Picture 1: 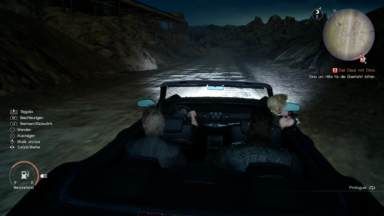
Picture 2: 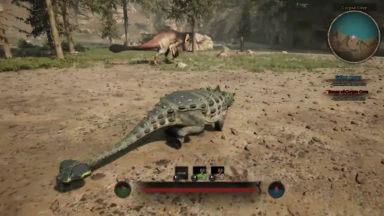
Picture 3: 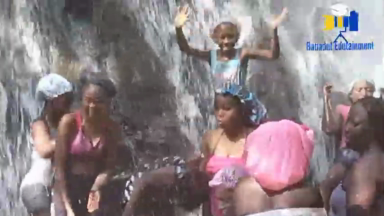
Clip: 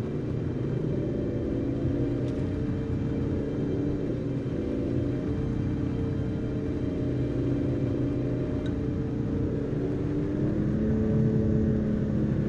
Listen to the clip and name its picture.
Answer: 1